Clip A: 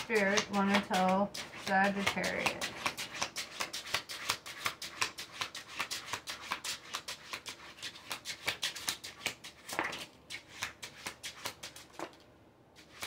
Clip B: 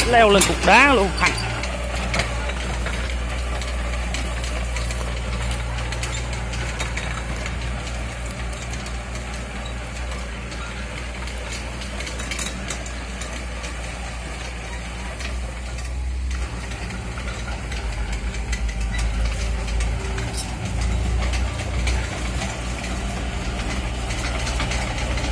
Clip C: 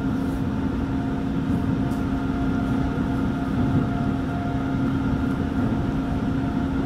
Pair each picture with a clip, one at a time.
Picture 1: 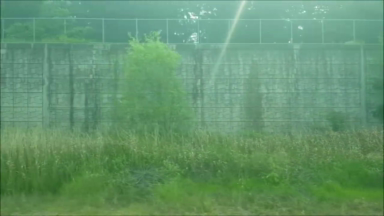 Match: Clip C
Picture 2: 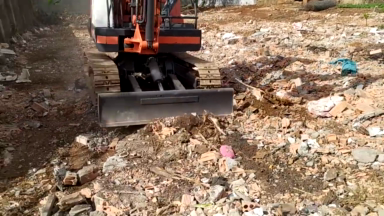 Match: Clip B